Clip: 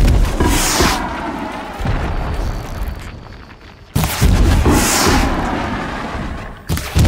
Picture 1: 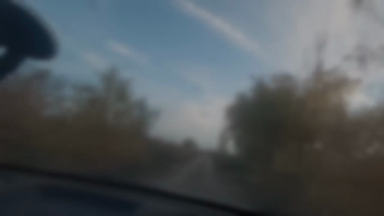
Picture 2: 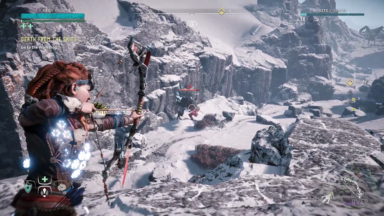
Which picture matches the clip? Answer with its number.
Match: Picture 2